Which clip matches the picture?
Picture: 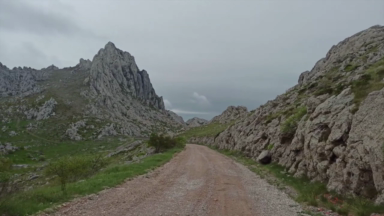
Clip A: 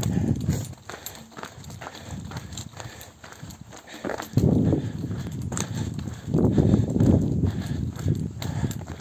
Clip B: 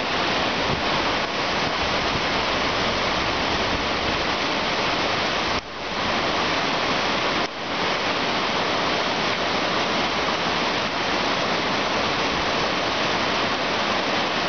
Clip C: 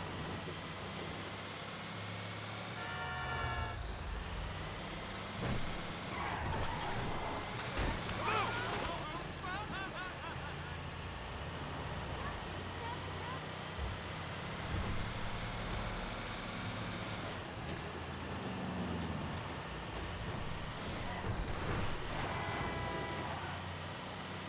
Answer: A